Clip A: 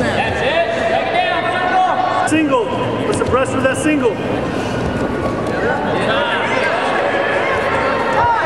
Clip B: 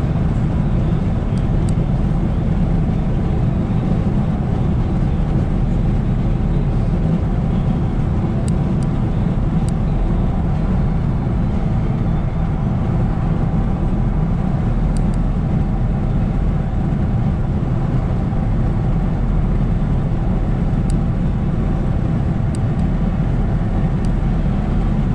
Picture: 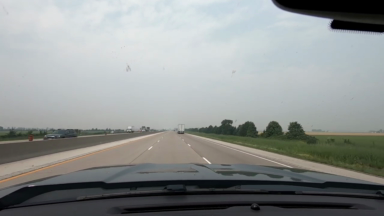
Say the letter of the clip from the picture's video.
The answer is B